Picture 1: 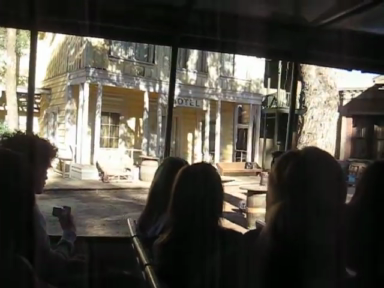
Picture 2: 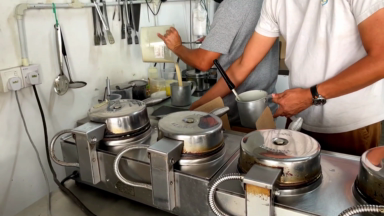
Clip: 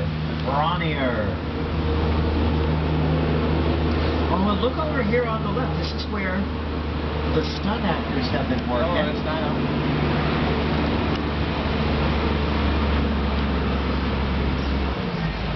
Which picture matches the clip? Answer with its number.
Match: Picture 1